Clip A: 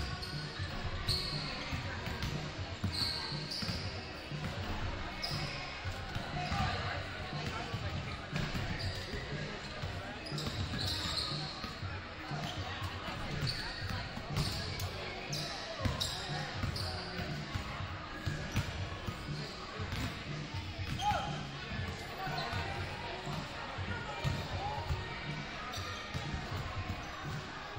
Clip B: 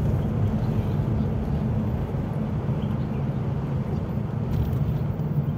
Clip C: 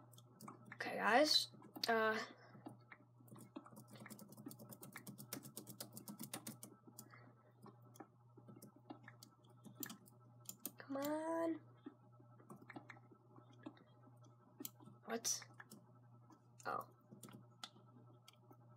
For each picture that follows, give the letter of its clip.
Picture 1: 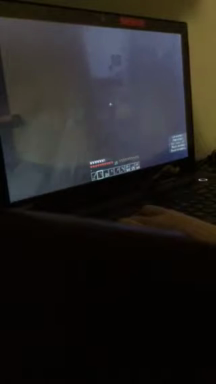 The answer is C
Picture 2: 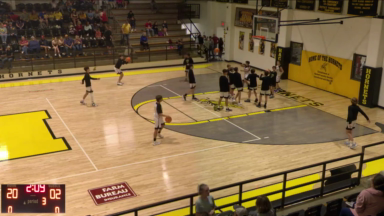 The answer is A